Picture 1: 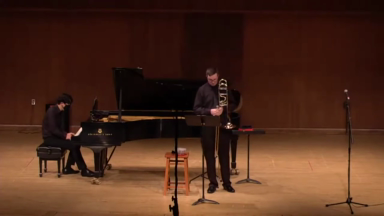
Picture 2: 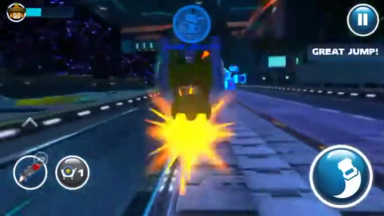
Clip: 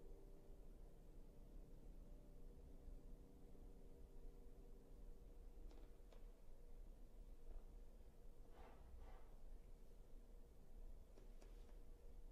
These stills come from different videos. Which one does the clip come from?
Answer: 1